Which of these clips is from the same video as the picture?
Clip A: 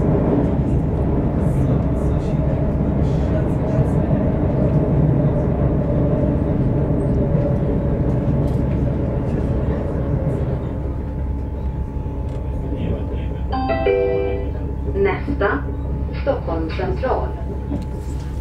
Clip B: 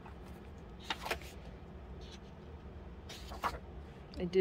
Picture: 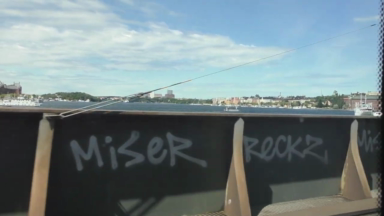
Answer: A